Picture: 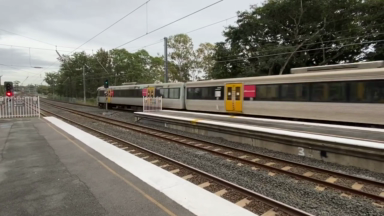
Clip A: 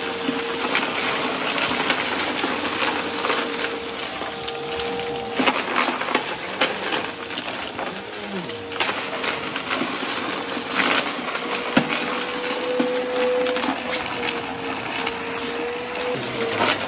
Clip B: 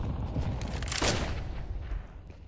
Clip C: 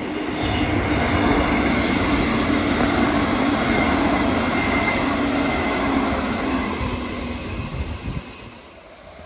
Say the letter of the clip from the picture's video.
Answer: C